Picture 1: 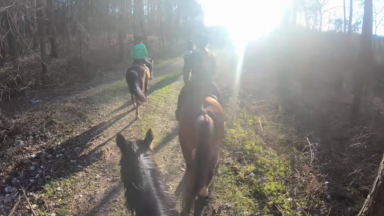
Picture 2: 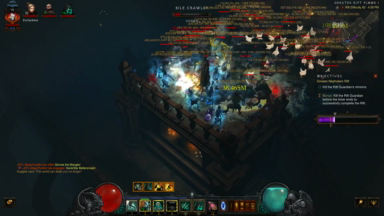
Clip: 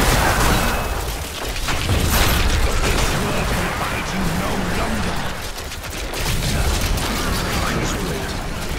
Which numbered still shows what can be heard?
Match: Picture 2